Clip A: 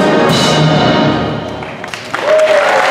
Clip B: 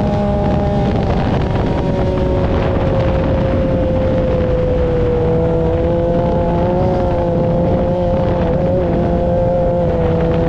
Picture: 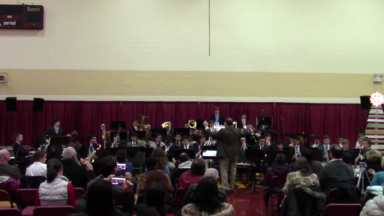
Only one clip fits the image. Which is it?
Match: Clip A